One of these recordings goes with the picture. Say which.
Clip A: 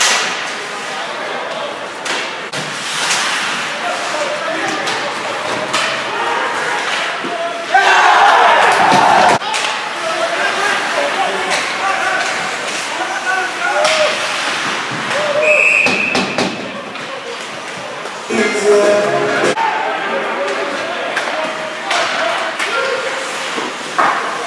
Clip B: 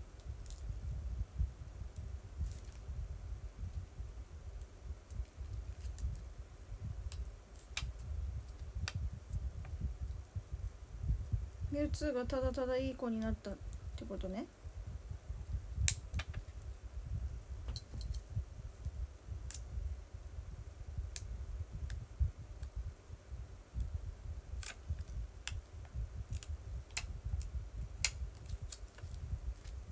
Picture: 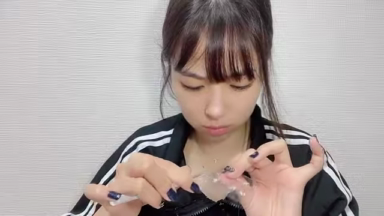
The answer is B